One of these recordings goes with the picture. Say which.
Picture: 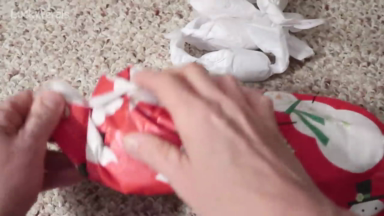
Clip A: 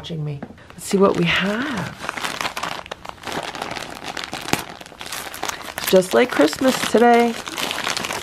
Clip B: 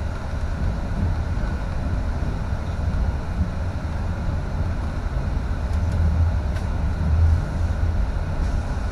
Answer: A